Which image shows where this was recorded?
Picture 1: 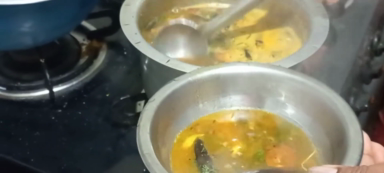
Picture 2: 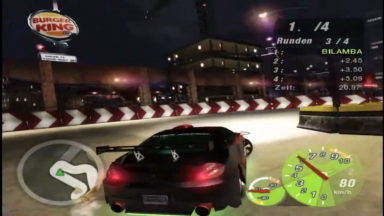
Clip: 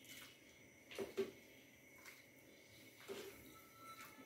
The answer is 1